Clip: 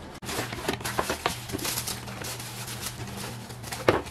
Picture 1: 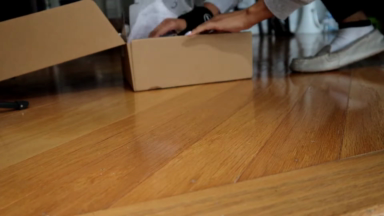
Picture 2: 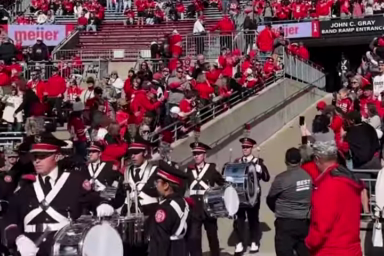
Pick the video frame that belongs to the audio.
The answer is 1